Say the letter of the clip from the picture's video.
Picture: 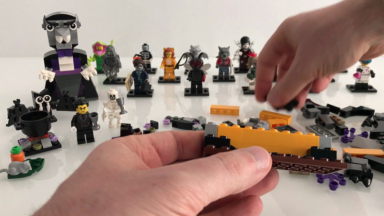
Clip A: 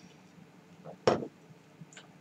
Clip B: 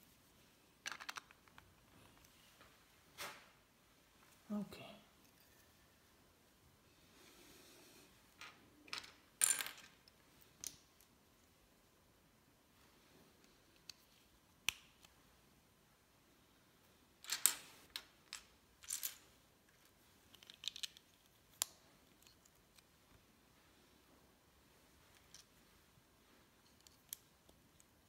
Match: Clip B